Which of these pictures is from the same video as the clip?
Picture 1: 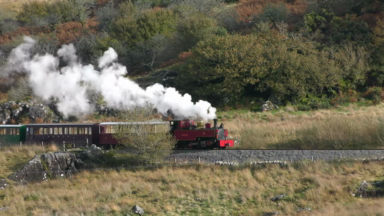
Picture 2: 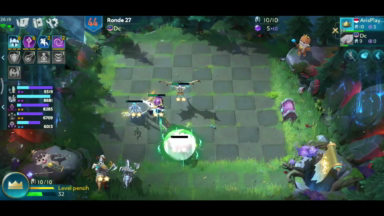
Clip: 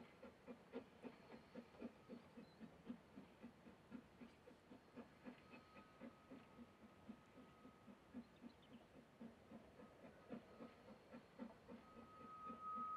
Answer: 1